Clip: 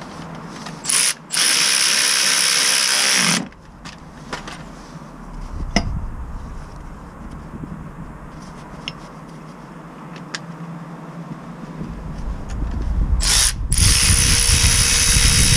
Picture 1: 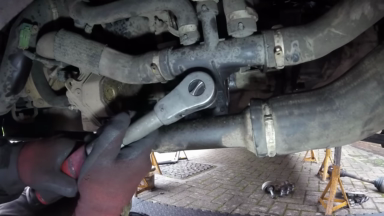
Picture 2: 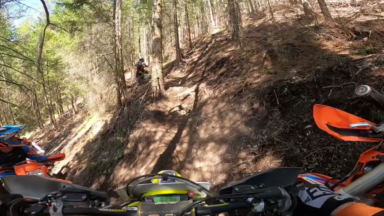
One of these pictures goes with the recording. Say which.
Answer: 1